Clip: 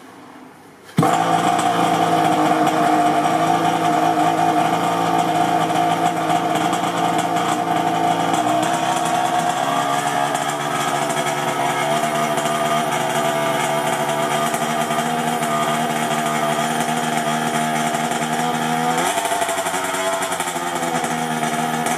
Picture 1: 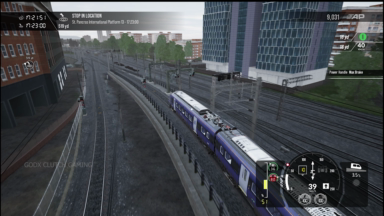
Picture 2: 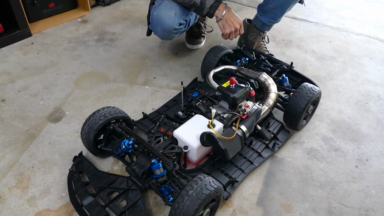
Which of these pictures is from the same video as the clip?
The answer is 2